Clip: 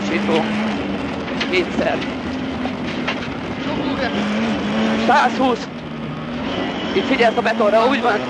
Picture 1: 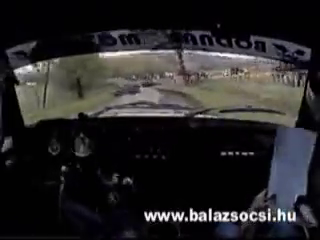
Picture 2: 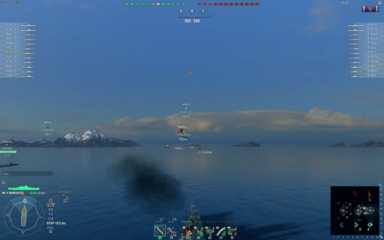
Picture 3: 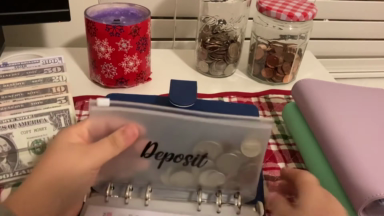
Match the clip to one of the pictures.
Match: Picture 1